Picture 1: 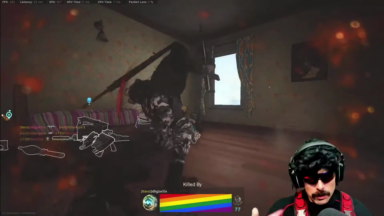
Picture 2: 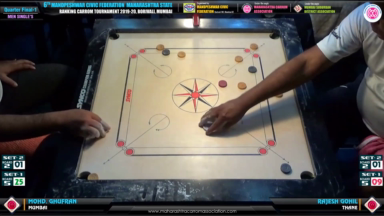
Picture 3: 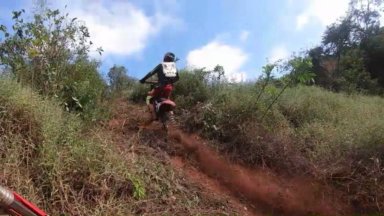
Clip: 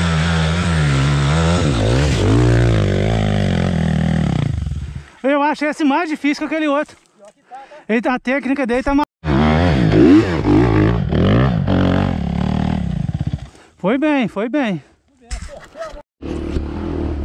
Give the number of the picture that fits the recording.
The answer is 3